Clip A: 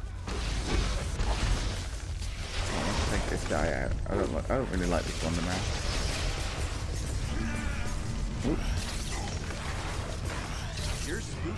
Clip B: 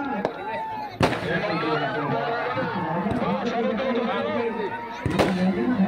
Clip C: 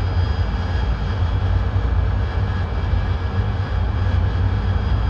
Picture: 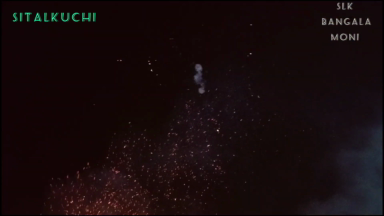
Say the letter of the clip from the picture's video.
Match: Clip B